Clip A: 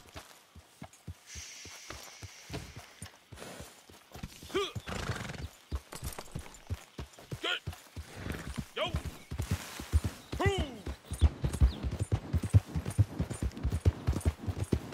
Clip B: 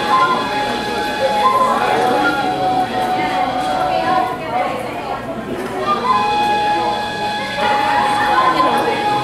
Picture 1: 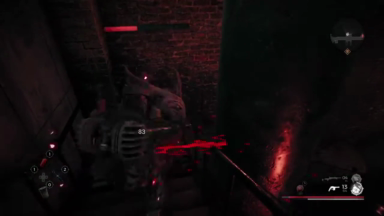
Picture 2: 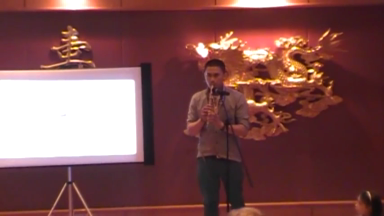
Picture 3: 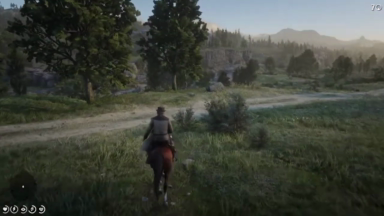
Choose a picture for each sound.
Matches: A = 3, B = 2